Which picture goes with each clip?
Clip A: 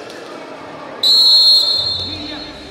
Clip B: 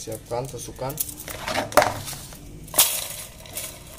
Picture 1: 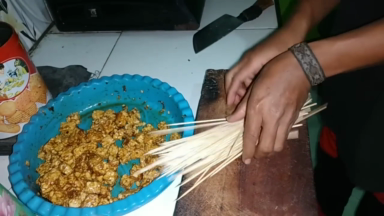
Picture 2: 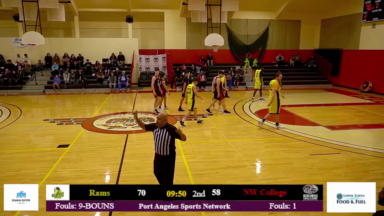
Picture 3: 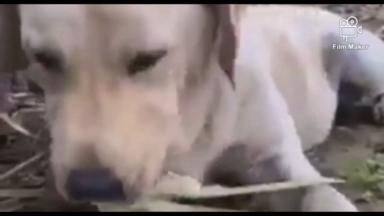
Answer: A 2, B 1